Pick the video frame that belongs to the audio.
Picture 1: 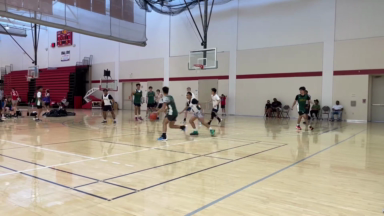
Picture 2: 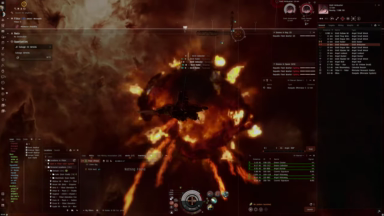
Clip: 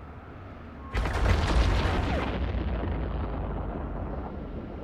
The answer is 2